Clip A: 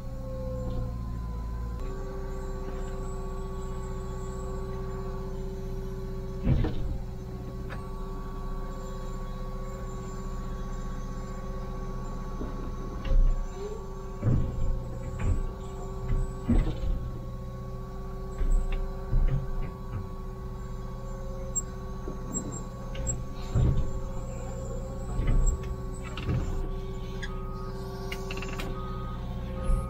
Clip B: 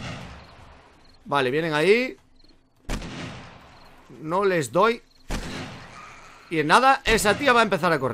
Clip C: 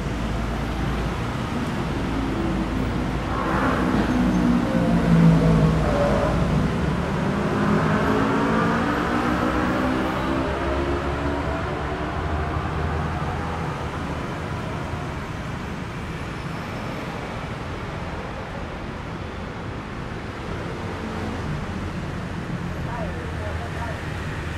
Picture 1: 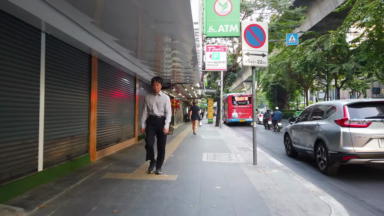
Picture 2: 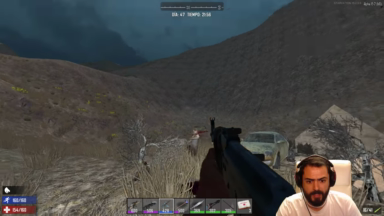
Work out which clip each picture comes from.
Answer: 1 C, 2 B